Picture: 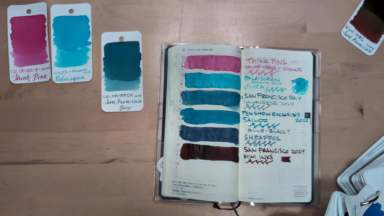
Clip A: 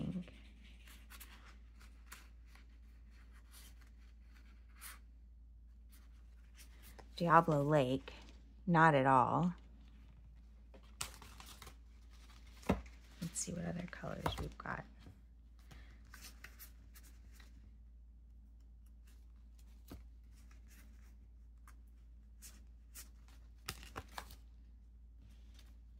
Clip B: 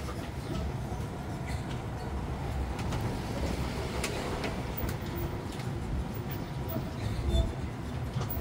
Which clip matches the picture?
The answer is A